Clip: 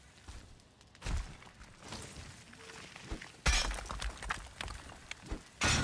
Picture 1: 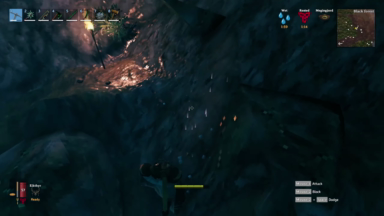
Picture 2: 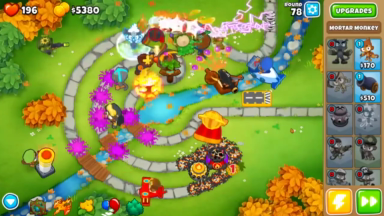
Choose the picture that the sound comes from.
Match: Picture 1